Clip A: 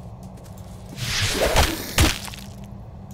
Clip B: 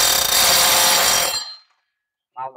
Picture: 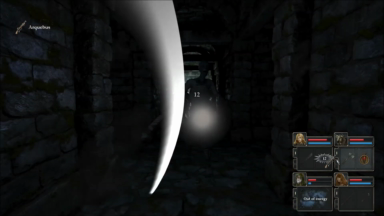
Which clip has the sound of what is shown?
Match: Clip A